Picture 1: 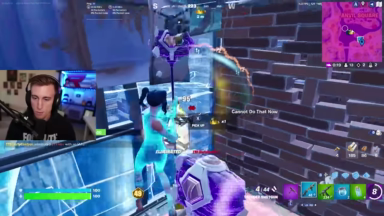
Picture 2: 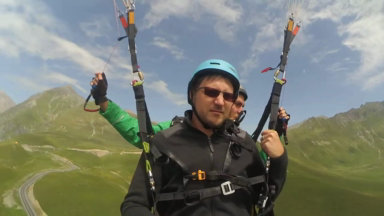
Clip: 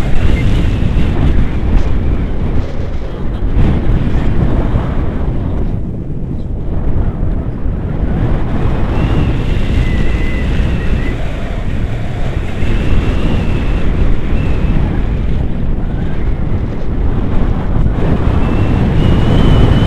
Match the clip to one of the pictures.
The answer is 2